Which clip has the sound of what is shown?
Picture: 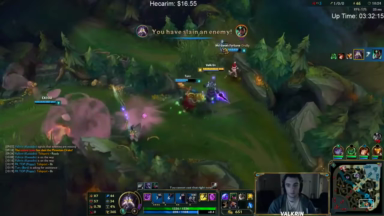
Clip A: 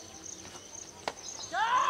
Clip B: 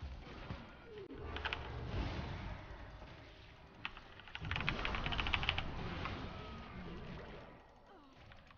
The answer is B